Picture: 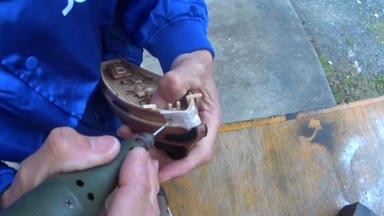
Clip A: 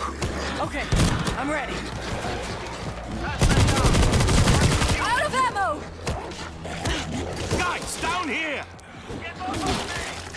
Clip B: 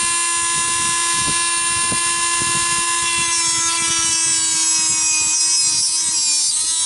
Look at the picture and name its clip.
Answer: B